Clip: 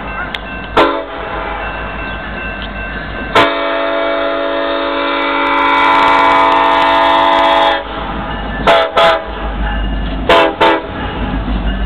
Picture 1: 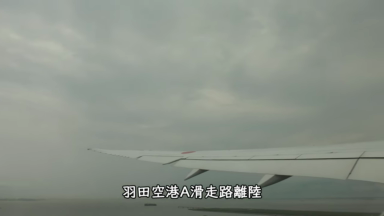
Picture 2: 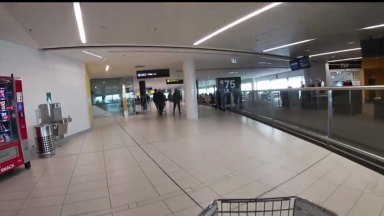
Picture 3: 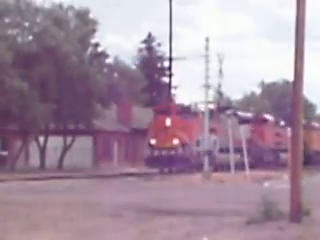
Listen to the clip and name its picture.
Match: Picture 3